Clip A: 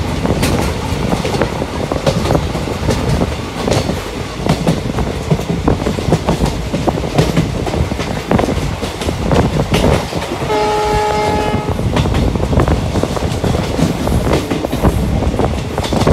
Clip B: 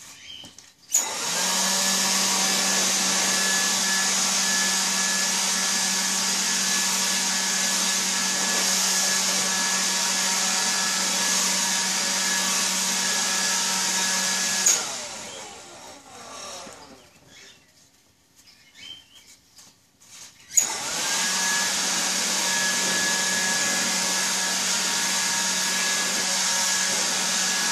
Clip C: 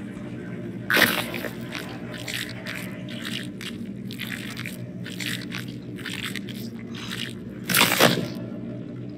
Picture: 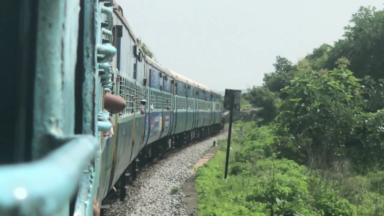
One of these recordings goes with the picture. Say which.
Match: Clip A